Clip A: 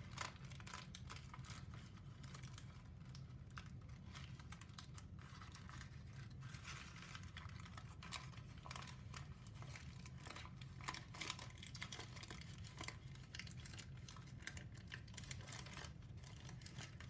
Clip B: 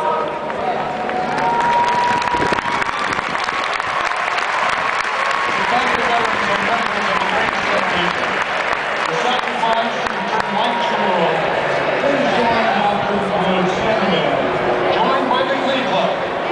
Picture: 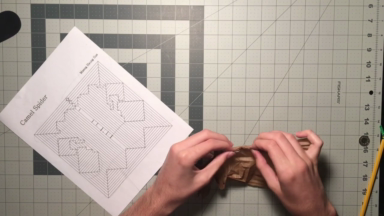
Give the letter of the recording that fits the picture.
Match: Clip A